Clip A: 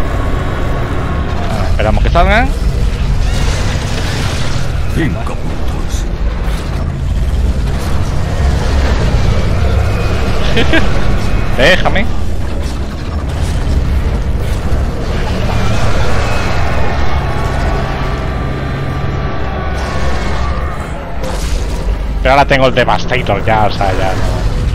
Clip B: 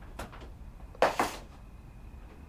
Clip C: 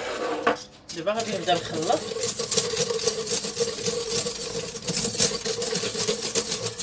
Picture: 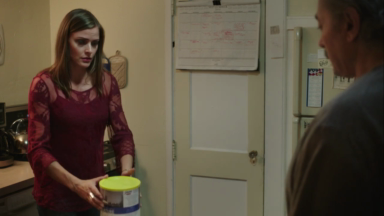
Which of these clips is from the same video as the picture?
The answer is B